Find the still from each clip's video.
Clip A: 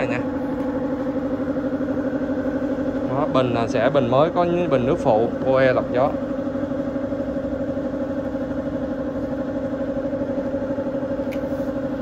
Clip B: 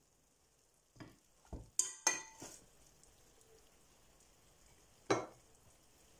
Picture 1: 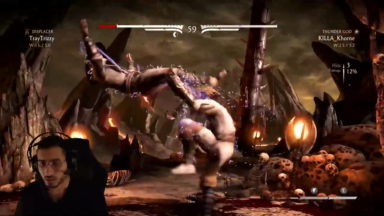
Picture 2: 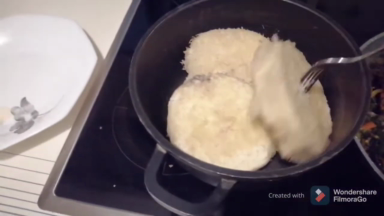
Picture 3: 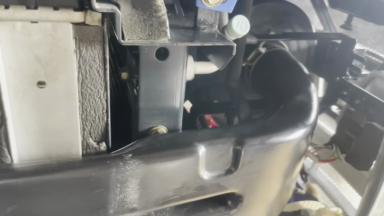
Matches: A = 3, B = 2